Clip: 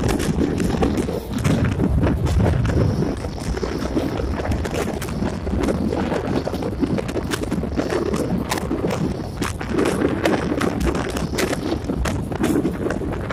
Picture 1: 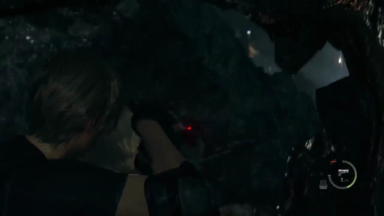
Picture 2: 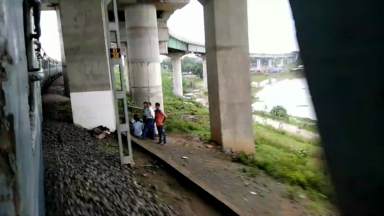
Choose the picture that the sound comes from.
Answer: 2